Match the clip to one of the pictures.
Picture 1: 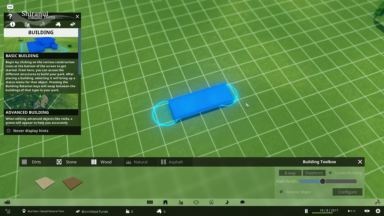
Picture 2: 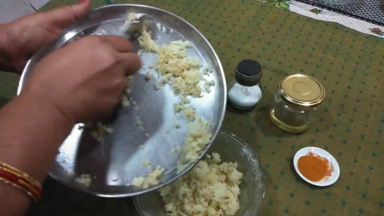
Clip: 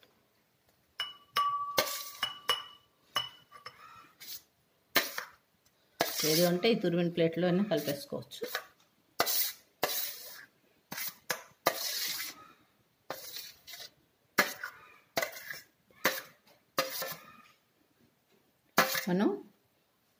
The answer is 2